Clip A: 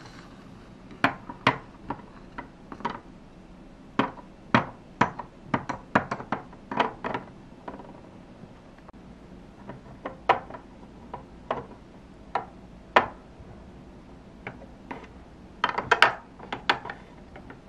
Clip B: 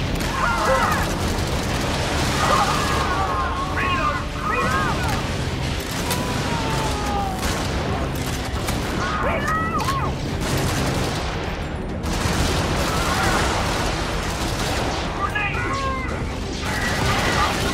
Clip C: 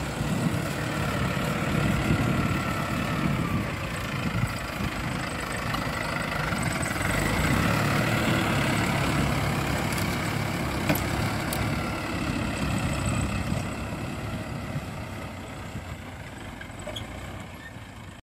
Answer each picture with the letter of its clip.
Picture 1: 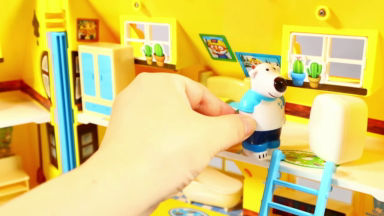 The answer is A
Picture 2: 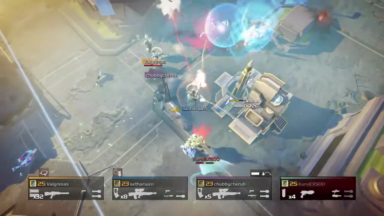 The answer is B